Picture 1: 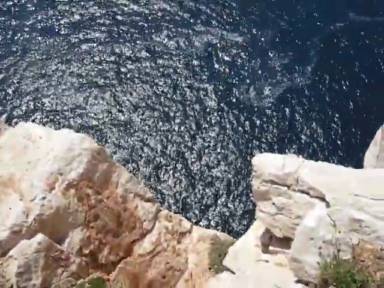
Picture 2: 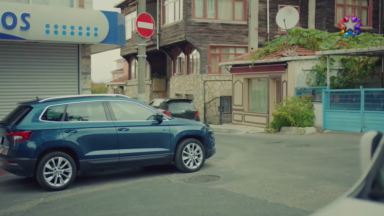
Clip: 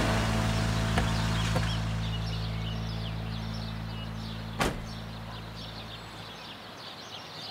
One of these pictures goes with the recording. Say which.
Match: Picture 2